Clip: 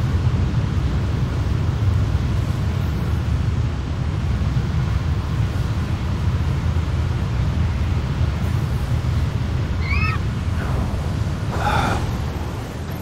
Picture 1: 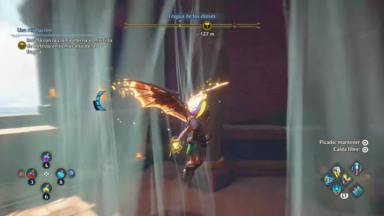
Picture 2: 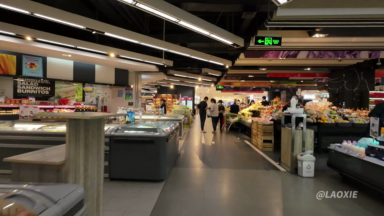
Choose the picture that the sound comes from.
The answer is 1